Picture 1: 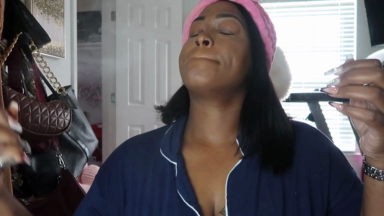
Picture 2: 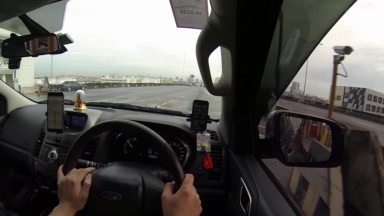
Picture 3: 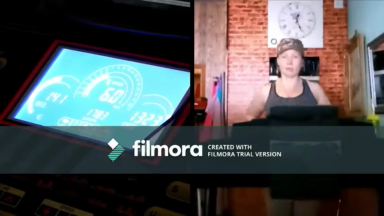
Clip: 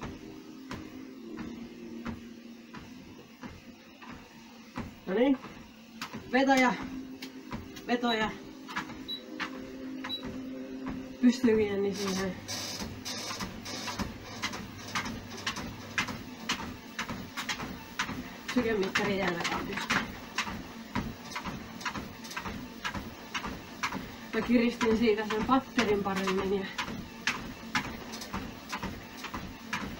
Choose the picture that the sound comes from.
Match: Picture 3